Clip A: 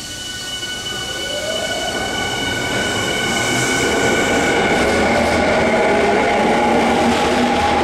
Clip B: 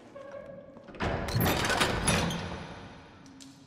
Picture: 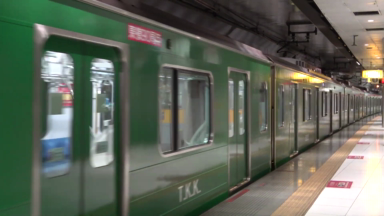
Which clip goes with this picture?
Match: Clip A